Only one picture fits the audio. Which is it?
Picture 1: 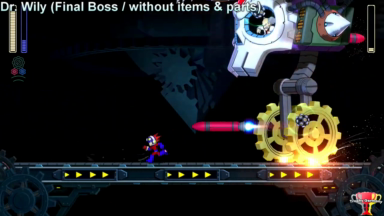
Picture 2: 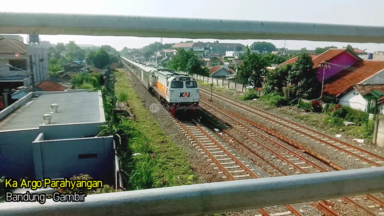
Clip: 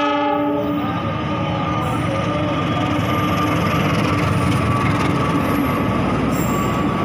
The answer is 2